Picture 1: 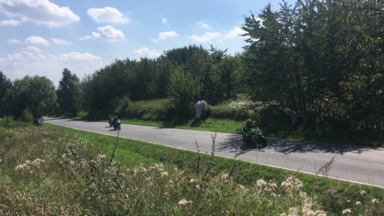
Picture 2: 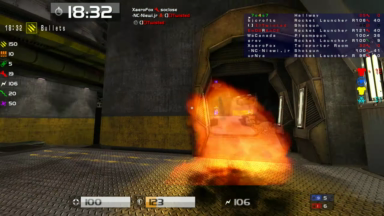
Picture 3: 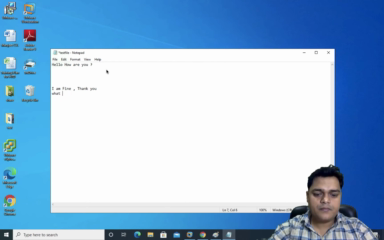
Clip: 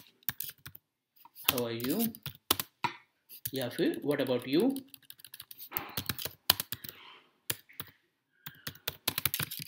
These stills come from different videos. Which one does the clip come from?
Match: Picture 3